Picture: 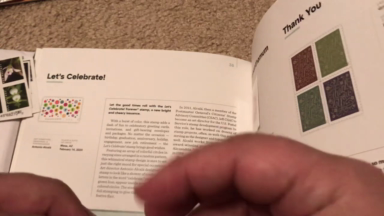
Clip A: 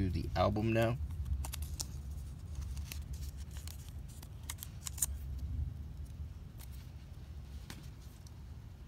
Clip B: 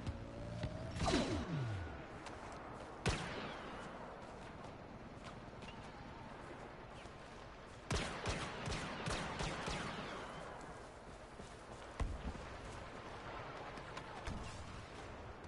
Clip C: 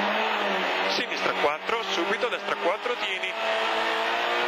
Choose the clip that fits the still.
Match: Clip A